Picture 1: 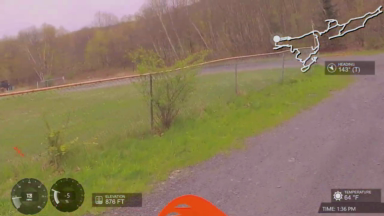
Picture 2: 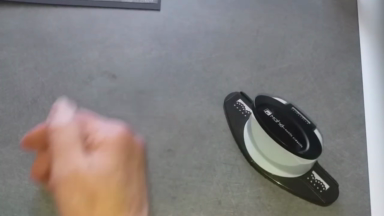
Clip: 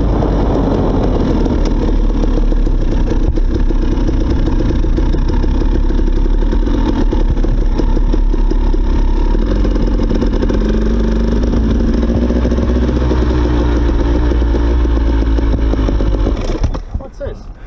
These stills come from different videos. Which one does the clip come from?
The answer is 1